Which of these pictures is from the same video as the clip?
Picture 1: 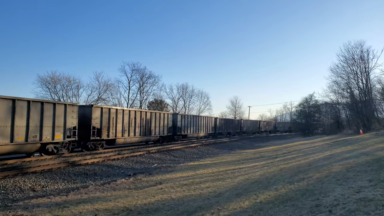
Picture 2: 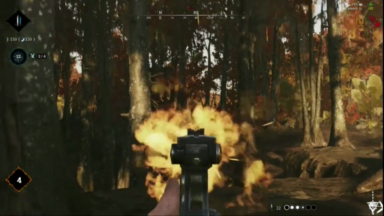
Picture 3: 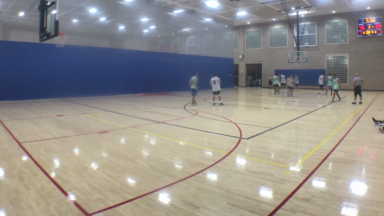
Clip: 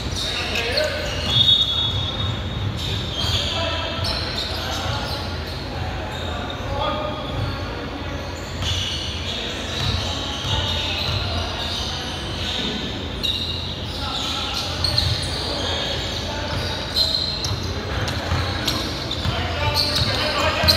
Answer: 3